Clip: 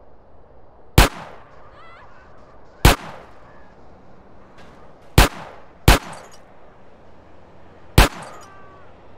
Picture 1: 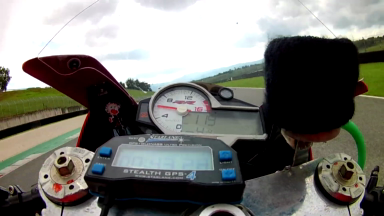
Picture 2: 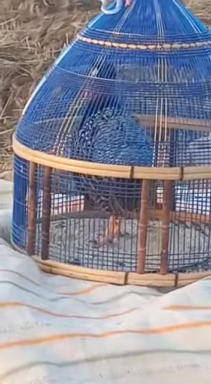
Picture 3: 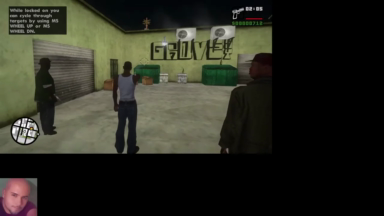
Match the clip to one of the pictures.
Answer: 3